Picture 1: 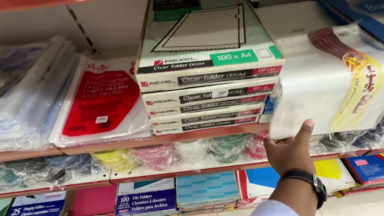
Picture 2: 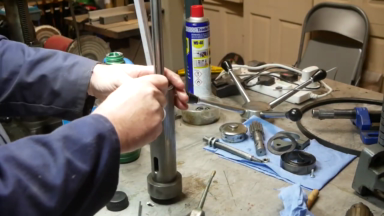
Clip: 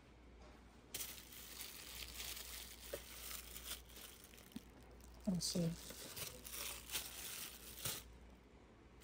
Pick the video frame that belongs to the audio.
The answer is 1